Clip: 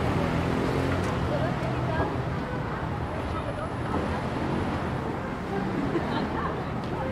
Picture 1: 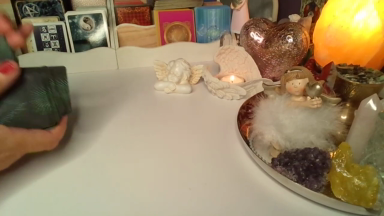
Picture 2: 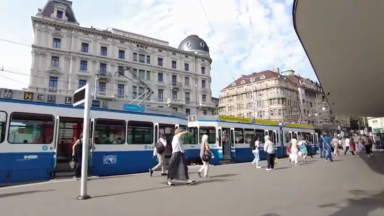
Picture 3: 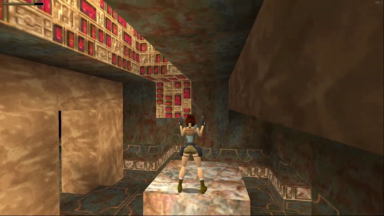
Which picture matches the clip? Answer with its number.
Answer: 2